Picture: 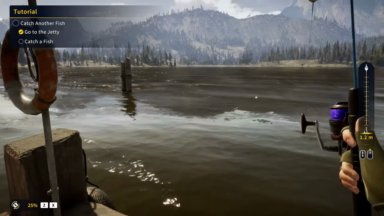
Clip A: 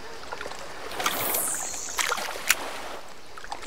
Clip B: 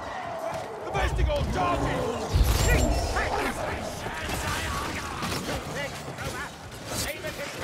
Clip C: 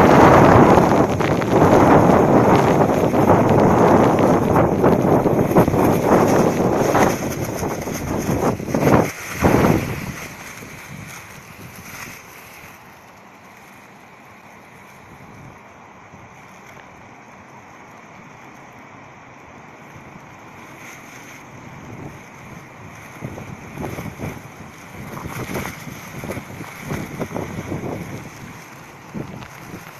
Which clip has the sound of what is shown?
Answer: A